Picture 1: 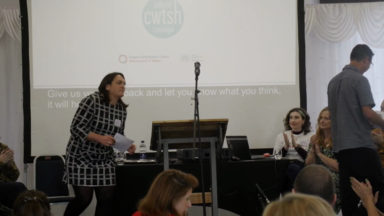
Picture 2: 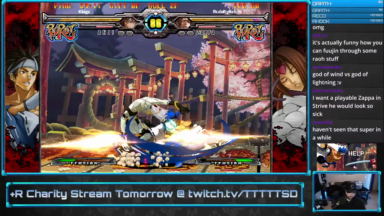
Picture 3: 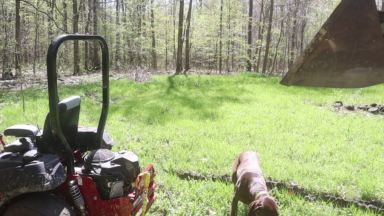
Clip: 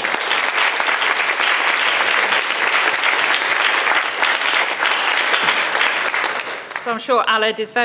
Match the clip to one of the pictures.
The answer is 1